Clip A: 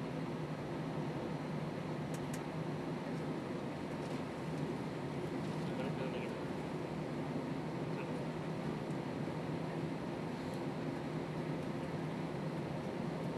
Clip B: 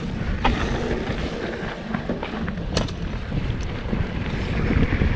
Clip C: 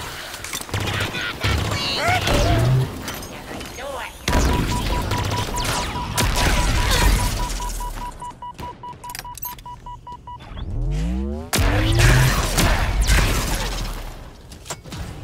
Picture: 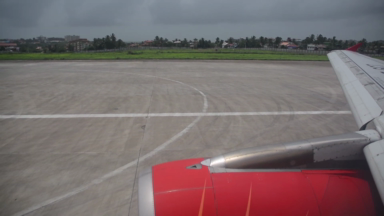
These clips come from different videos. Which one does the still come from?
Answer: A